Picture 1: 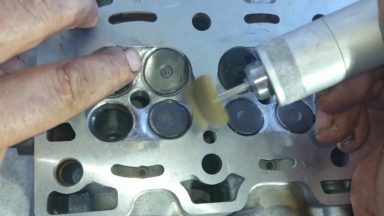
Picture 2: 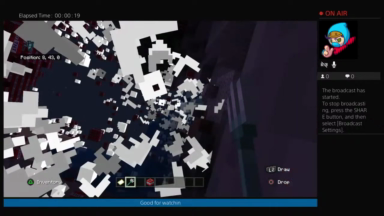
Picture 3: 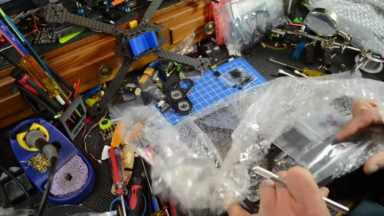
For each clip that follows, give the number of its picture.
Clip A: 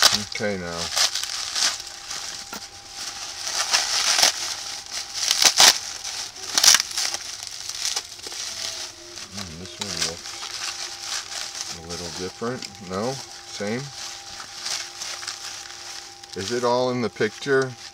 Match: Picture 3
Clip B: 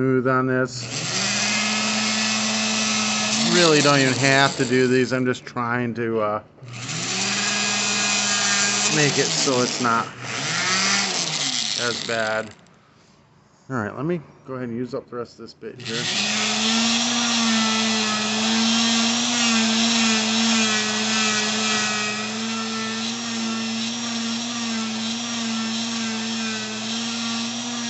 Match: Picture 1